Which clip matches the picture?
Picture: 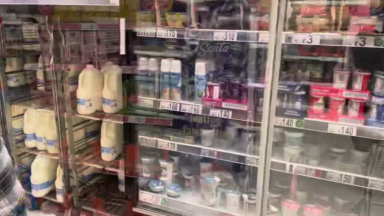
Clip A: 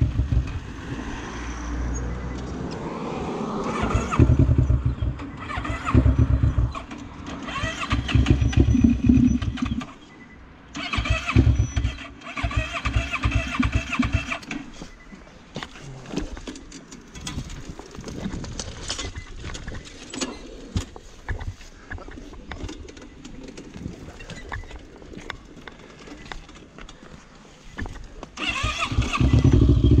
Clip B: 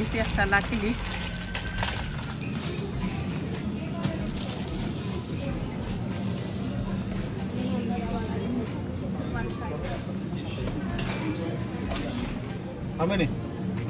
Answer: B